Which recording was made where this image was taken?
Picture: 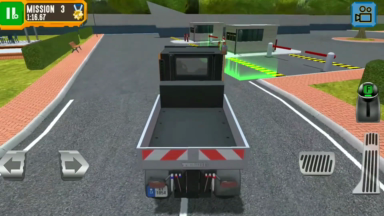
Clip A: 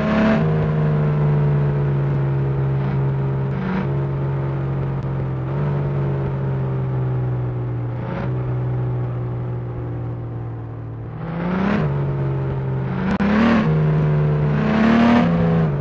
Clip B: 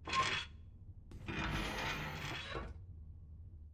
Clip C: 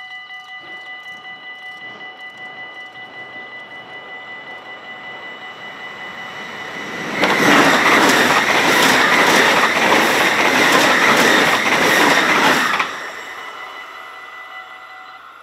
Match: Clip A